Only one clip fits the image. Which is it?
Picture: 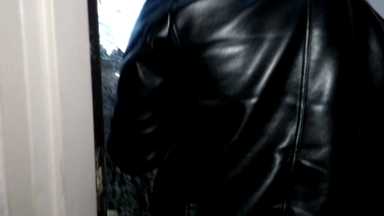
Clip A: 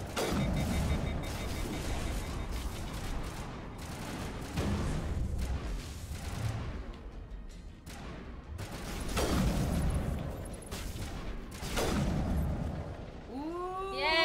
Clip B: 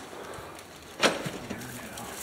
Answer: B